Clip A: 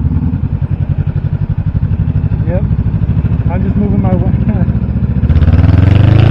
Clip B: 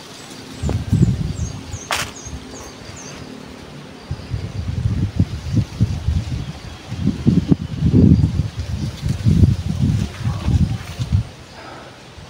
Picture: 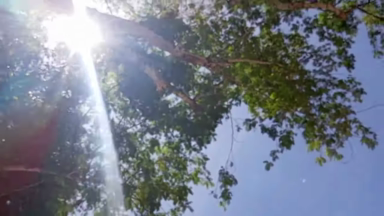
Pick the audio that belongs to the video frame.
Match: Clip B